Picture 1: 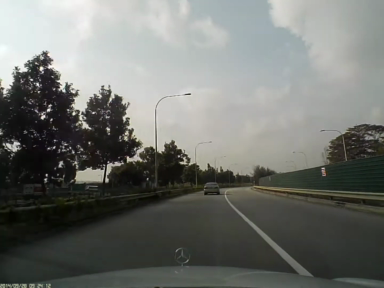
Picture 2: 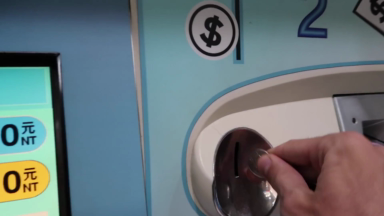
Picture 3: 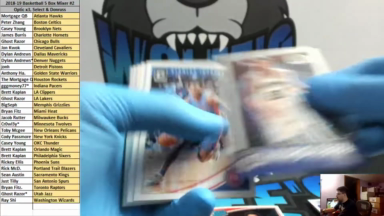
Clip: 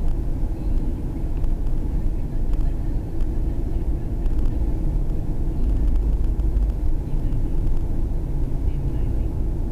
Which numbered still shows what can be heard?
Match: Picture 1